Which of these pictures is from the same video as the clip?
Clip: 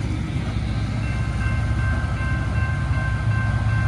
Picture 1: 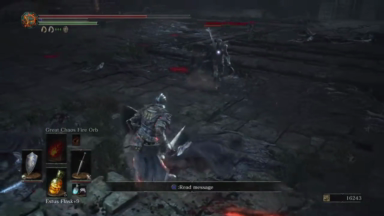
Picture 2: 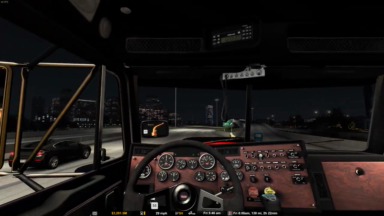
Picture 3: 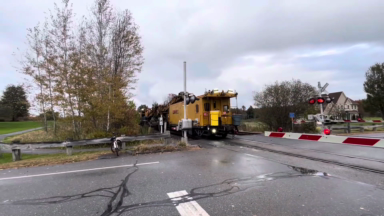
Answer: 3